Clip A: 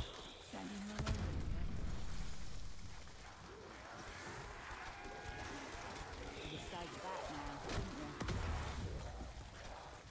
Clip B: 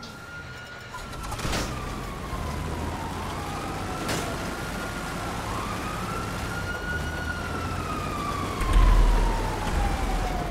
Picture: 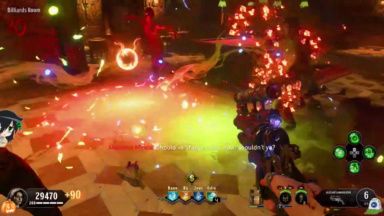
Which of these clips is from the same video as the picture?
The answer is A